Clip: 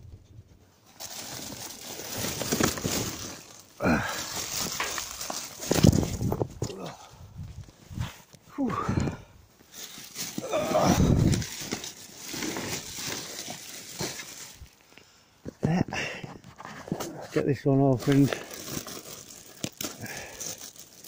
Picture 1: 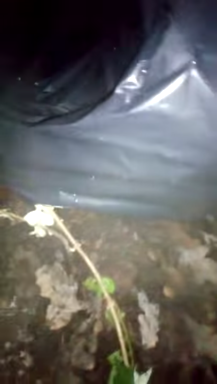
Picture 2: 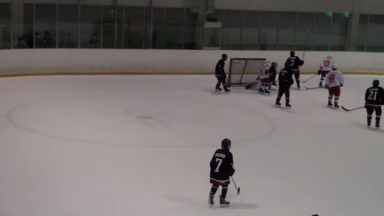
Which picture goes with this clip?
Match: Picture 1